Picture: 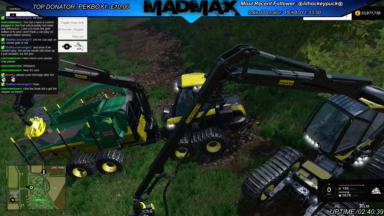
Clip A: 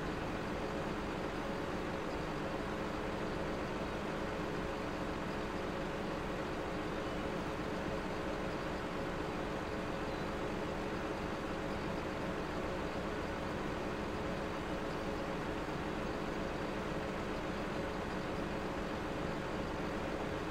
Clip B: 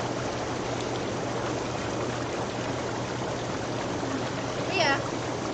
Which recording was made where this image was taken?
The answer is A